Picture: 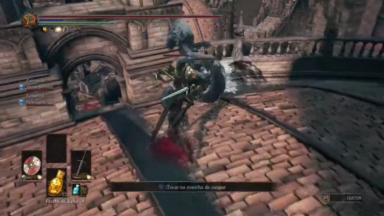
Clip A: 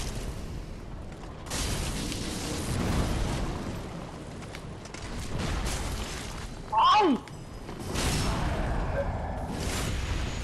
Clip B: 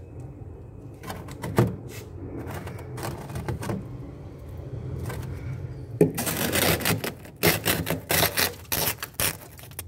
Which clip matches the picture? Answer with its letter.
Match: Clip A